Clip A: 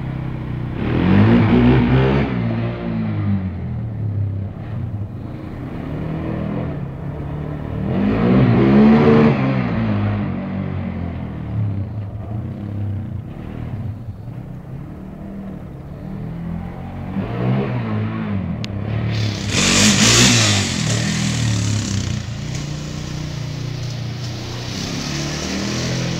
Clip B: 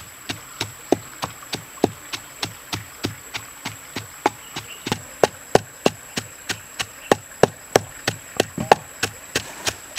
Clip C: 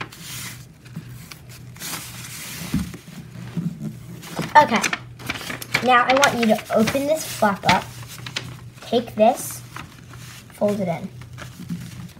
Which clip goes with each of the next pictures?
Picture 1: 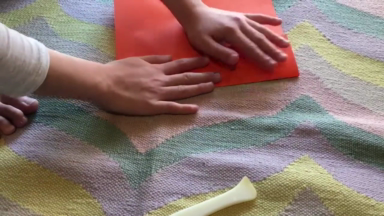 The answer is C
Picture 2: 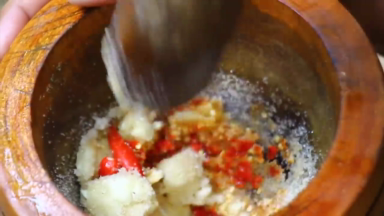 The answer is B